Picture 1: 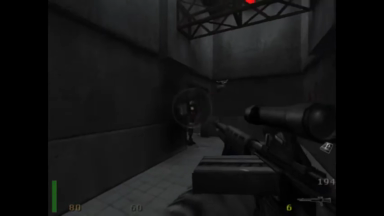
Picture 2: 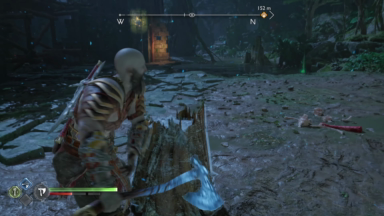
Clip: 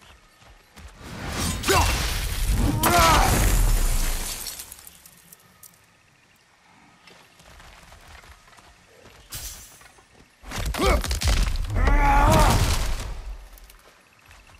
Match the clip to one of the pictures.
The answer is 2